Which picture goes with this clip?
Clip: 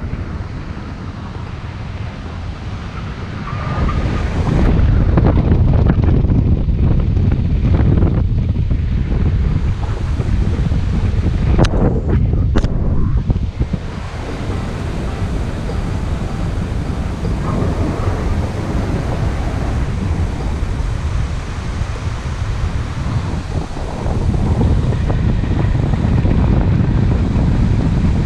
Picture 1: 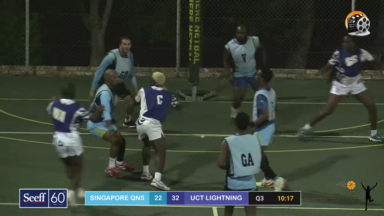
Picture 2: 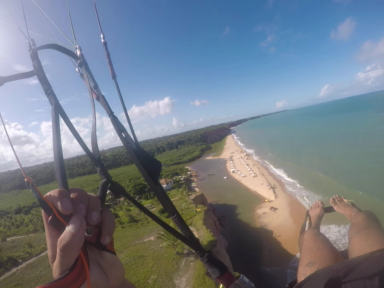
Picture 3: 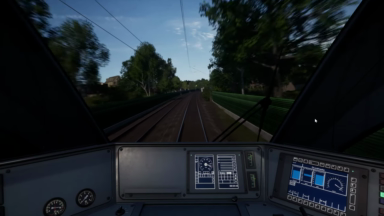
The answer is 2